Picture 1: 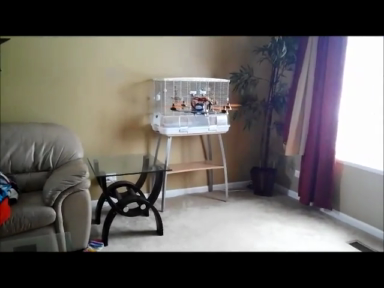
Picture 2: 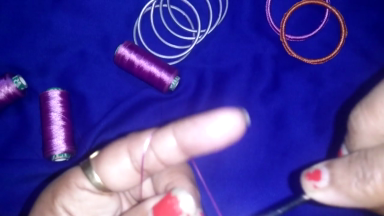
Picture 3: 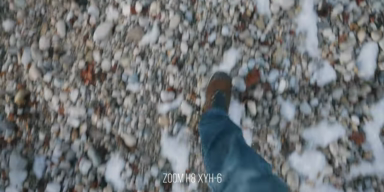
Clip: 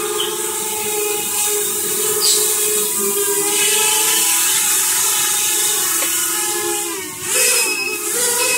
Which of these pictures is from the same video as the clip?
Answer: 1